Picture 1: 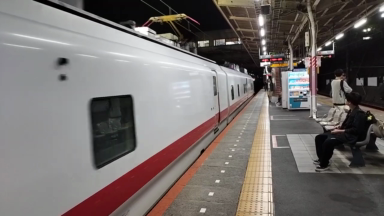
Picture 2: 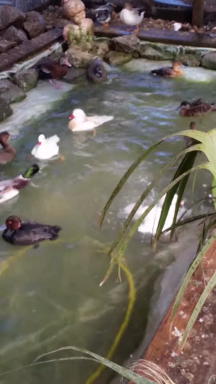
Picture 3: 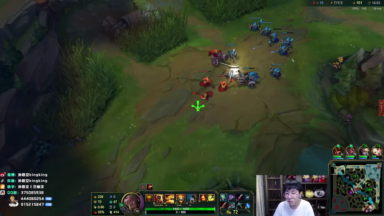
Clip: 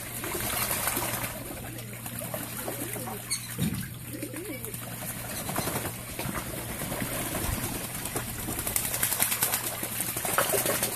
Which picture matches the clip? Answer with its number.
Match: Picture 2